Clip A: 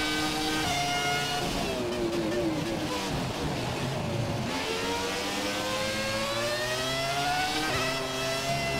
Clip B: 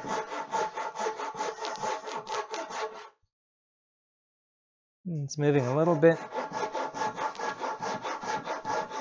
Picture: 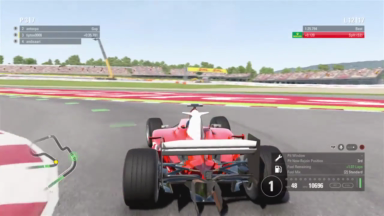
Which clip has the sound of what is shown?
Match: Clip A